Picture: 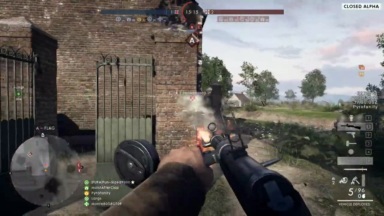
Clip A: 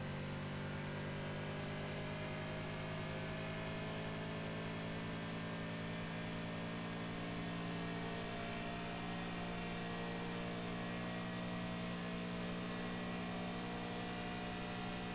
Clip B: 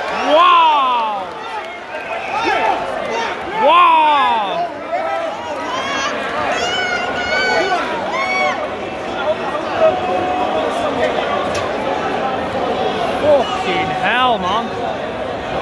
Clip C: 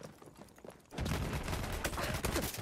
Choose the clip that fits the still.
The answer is C